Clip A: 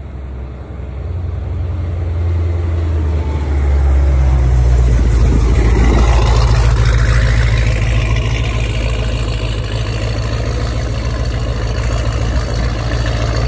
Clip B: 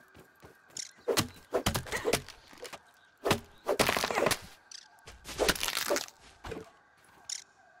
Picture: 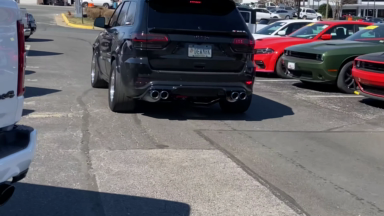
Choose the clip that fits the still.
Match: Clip A